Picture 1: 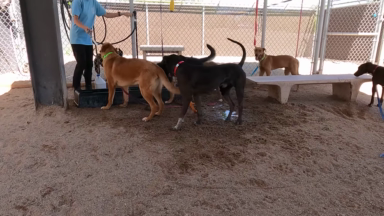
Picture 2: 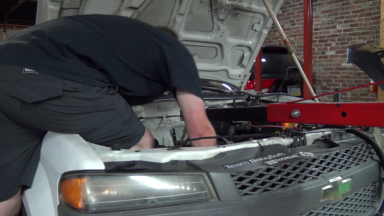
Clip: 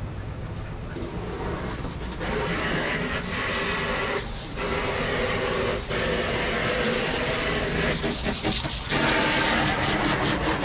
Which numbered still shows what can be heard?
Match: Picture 1